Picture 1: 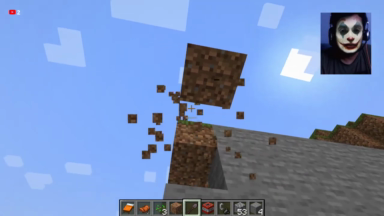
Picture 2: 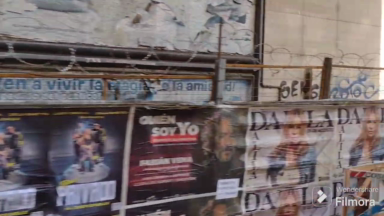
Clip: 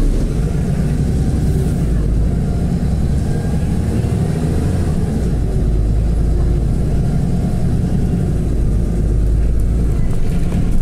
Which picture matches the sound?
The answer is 2